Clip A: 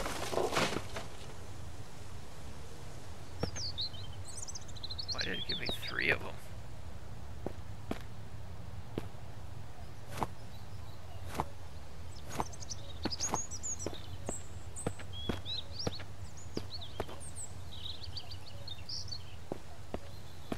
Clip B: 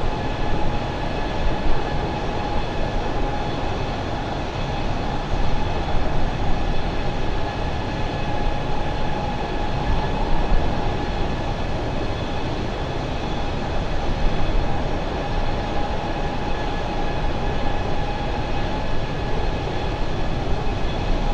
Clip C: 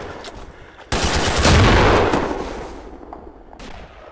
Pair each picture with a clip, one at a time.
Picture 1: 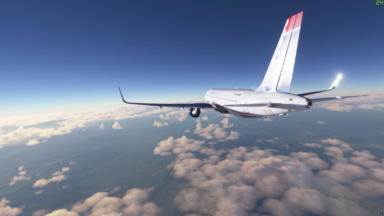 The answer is B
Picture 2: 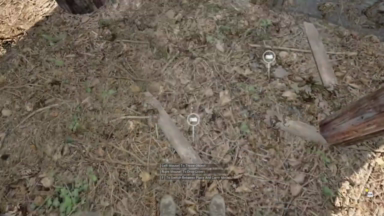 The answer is A